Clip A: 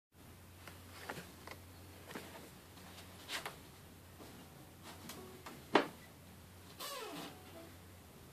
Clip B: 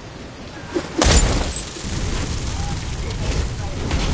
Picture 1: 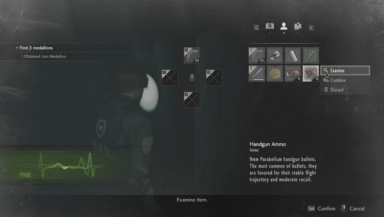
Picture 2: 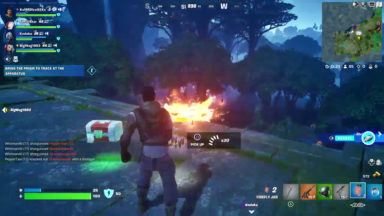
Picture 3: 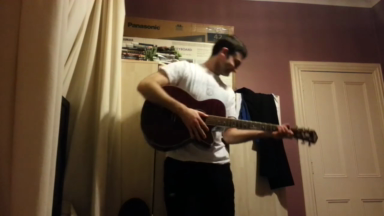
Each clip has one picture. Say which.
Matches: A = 3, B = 2